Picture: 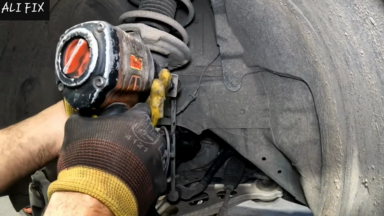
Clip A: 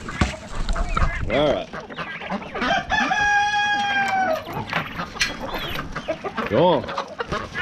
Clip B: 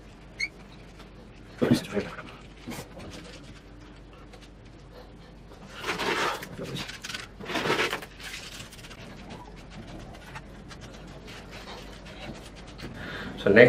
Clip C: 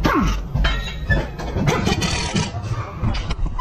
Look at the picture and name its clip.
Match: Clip C